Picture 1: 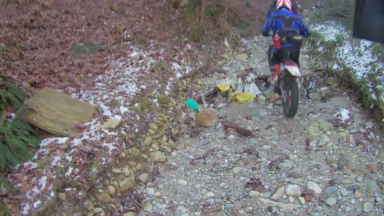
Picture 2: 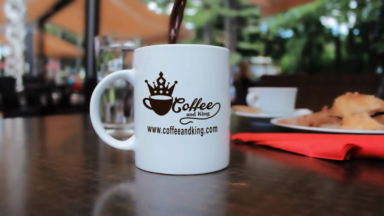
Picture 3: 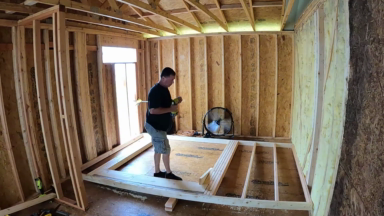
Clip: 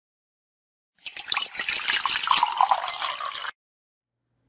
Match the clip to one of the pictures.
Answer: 2